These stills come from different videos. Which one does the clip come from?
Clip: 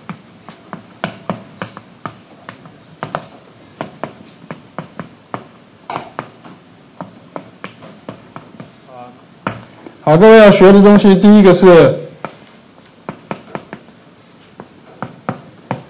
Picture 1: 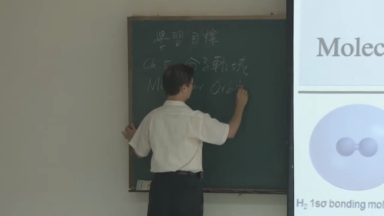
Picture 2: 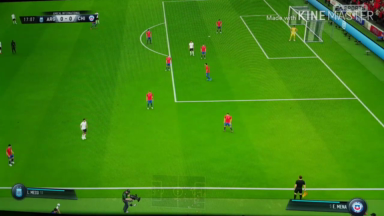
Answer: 1